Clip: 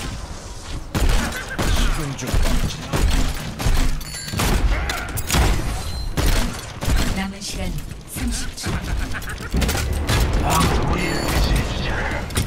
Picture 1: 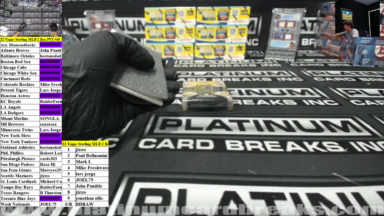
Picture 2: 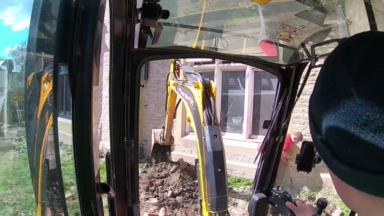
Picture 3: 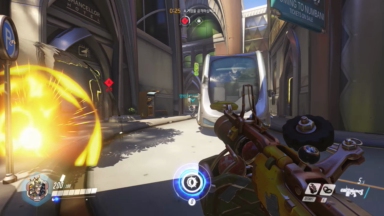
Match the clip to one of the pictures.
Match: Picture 3